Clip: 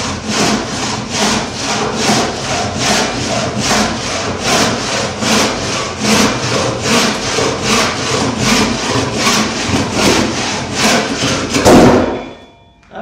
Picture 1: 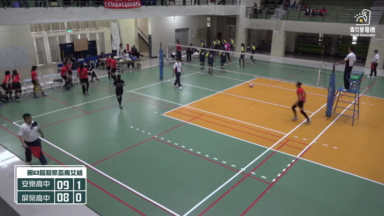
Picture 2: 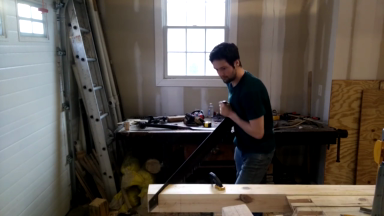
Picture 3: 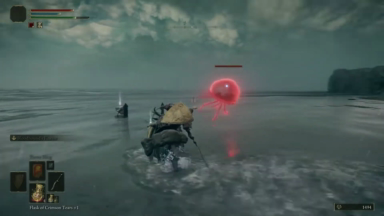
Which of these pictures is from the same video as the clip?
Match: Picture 2